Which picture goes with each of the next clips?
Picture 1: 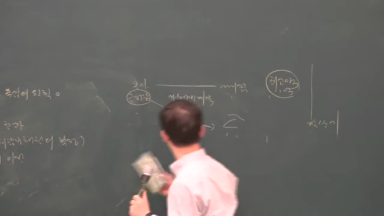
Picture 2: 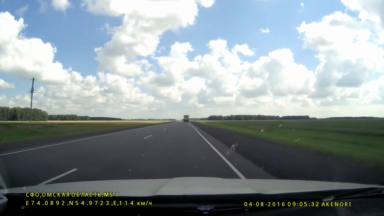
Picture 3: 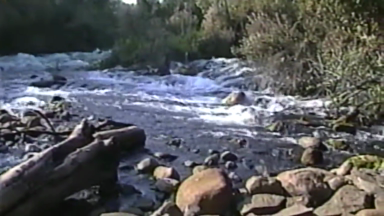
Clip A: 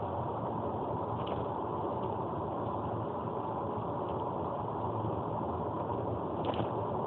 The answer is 2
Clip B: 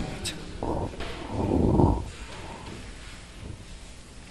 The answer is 1